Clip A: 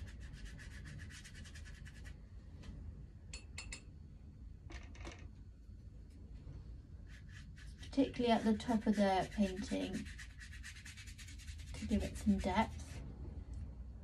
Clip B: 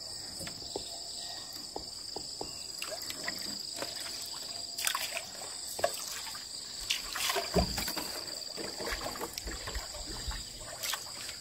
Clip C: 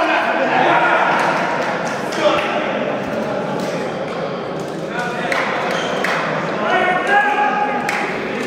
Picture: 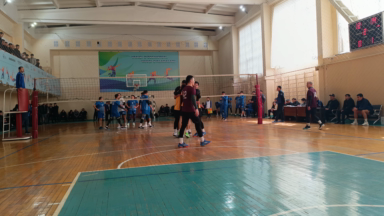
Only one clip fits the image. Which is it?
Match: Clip C